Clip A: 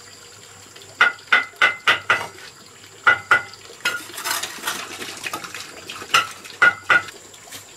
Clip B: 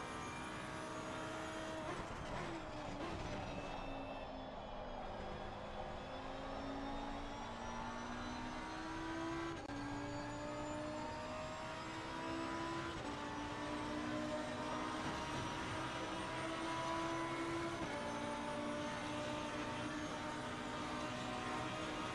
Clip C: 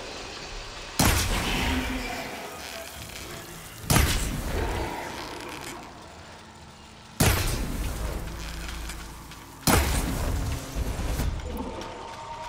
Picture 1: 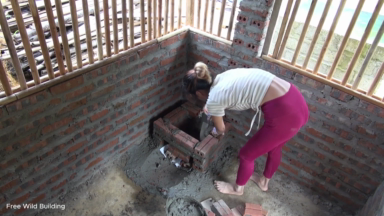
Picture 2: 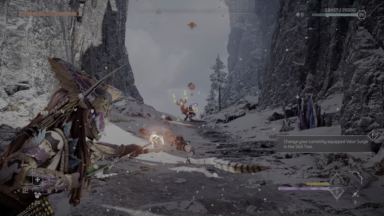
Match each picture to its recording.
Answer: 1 A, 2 C